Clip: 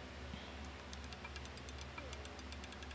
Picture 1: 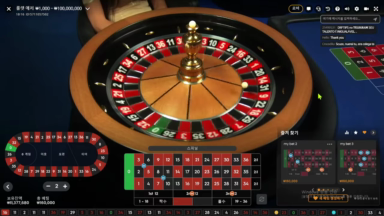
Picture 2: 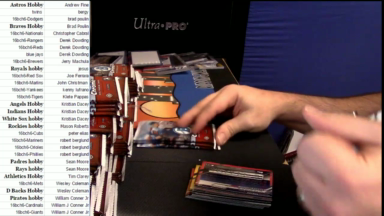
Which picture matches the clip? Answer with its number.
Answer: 1